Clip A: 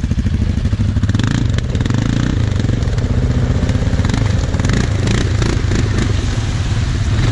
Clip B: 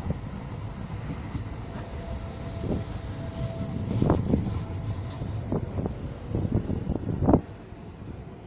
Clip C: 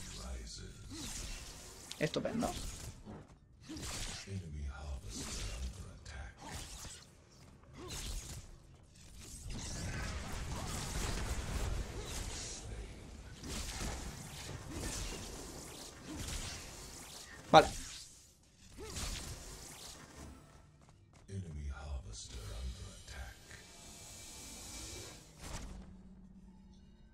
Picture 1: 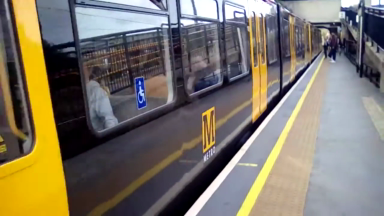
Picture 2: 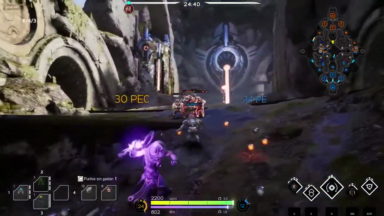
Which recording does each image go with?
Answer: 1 B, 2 C